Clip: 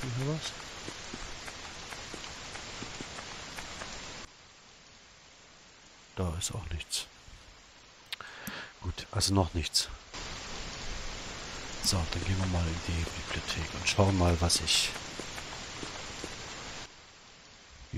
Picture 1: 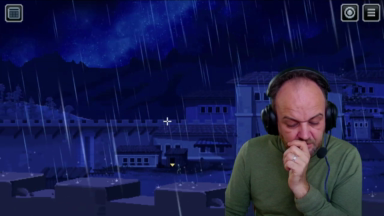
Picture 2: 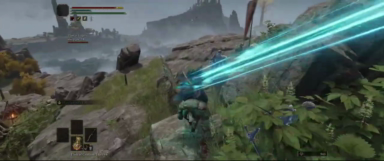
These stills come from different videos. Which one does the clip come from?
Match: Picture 1